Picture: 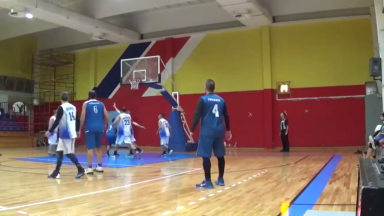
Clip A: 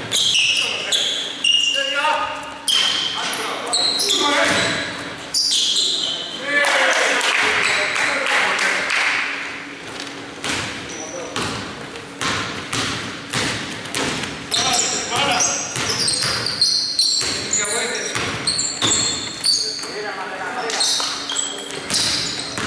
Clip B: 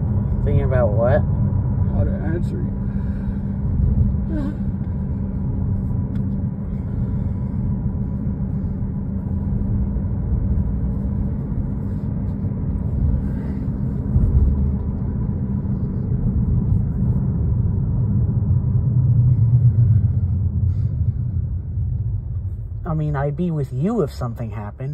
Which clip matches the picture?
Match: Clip A